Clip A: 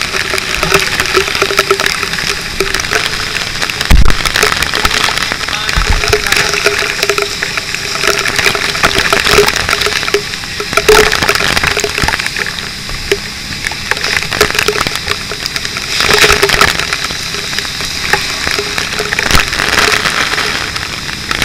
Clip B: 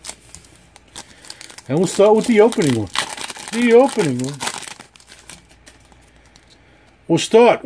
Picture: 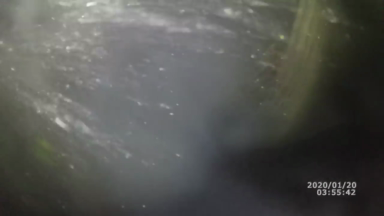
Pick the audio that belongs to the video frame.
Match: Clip A